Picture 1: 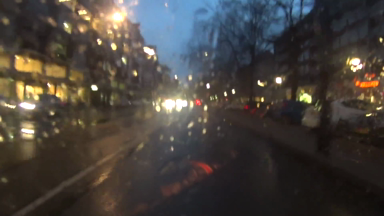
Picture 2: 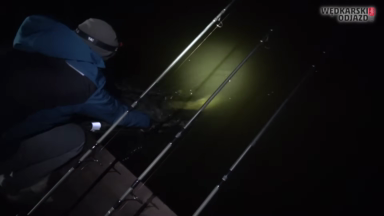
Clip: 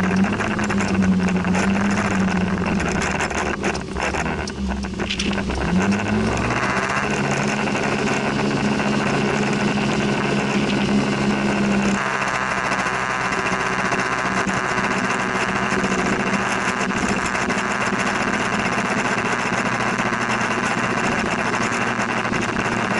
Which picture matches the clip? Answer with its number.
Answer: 1